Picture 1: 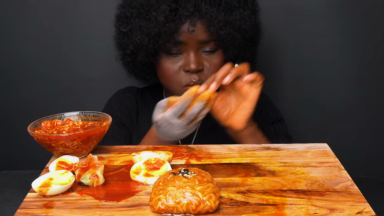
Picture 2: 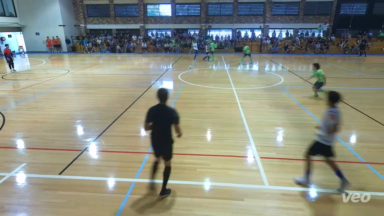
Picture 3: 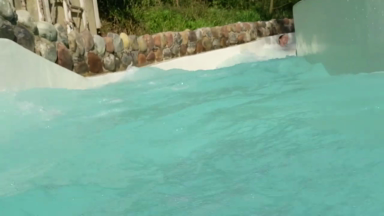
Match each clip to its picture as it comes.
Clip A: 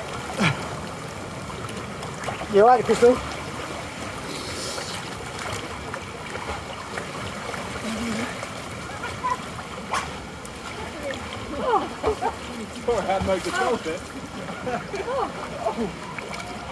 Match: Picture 3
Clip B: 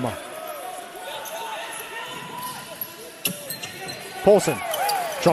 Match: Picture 2